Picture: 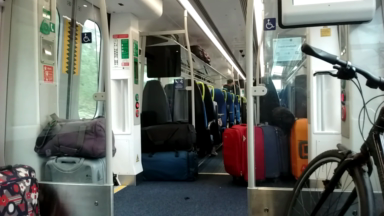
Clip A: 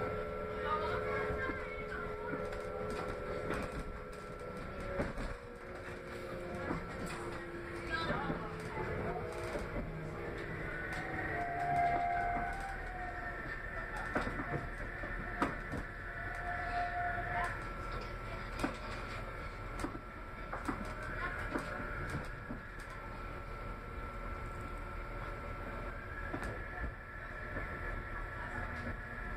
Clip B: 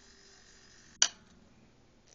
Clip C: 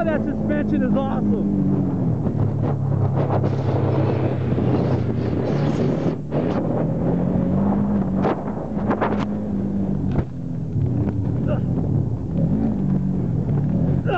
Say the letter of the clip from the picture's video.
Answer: A